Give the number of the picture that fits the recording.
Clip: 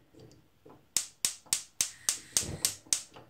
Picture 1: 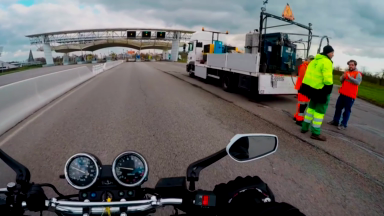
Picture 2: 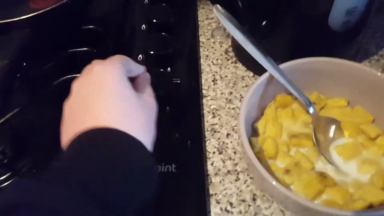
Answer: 2